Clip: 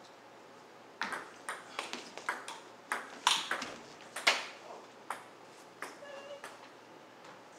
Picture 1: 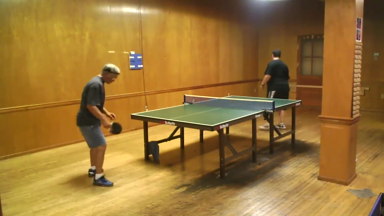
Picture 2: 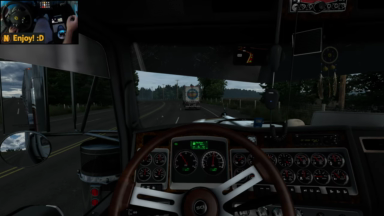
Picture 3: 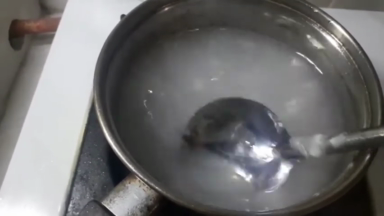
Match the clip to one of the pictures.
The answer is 1